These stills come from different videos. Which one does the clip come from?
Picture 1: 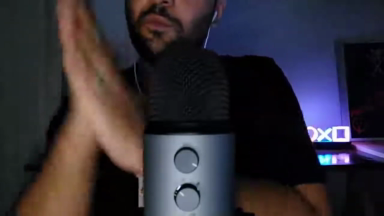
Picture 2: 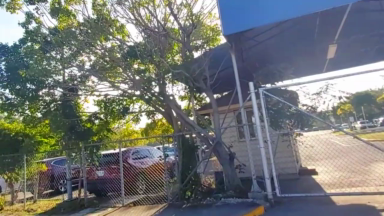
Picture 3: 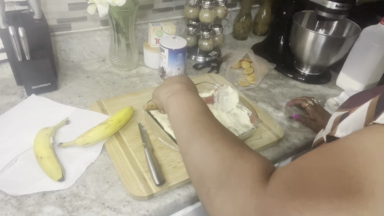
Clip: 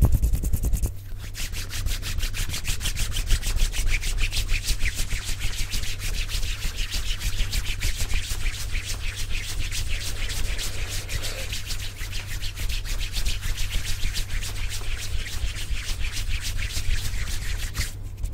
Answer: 1